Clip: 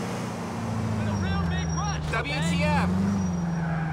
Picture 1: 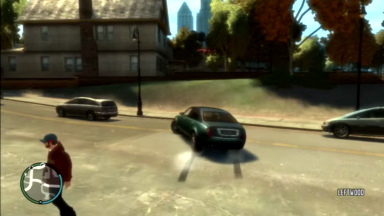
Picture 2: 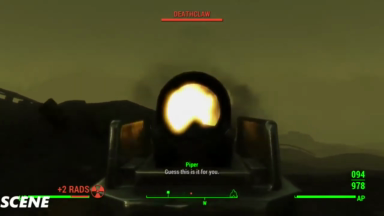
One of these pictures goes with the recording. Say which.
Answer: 1